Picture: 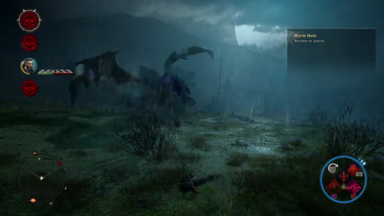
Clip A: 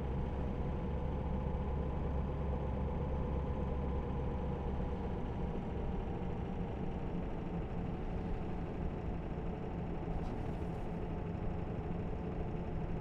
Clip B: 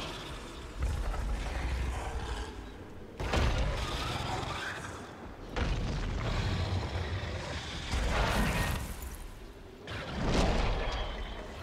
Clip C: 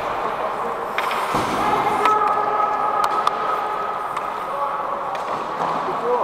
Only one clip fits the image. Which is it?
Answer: B